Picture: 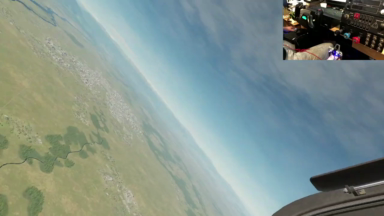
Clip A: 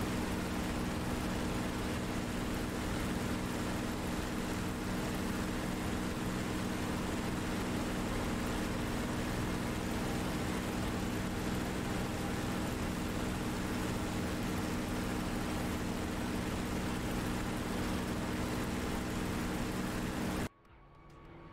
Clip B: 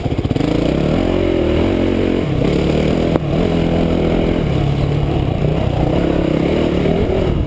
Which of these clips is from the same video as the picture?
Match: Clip A